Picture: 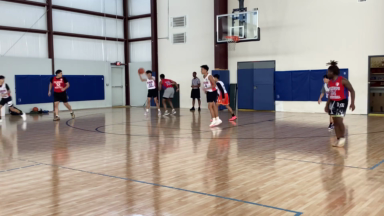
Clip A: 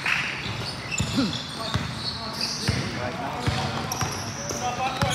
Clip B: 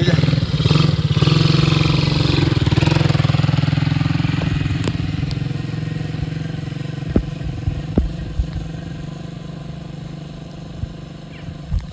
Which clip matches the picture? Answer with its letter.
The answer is A